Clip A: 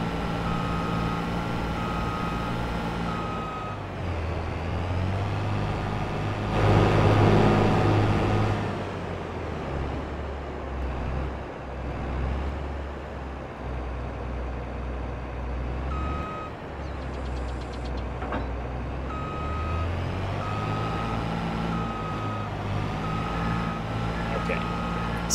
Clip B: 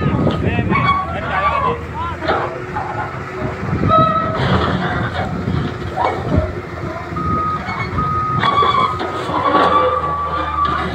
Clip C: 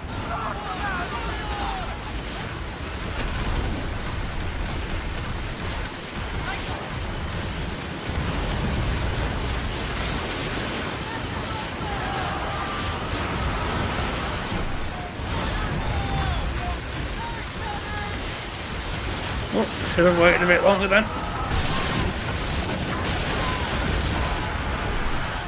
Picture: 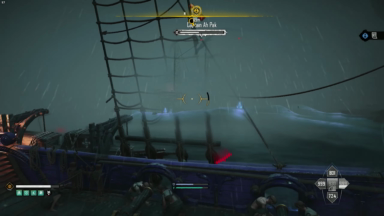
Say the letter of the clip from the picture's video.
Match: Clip C